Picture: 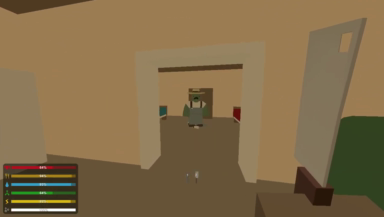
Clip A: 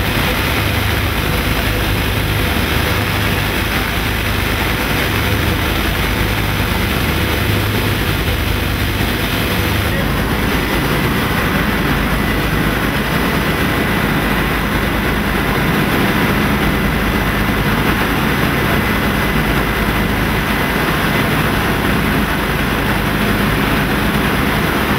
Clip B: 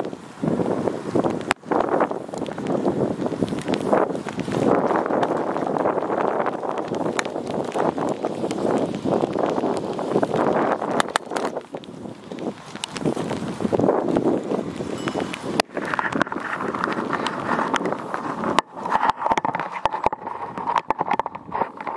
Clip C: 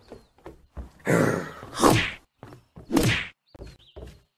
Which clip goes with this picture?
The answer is C